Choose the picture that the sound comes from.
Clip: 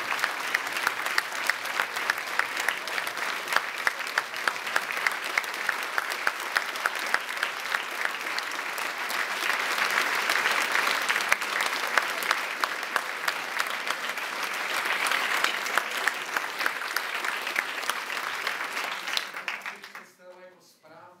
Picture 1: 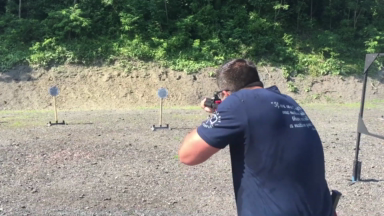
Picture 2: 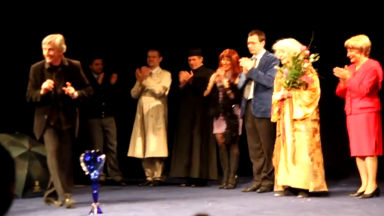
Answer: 2